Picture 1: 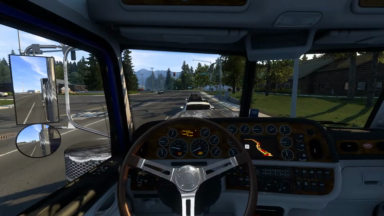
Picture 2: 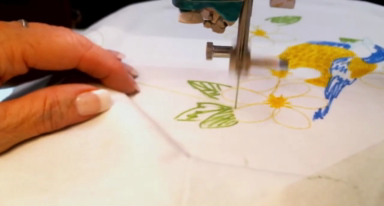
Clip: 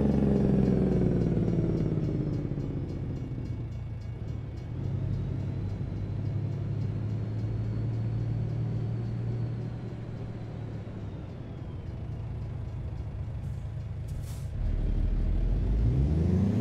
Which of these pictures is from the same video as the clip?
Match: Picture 1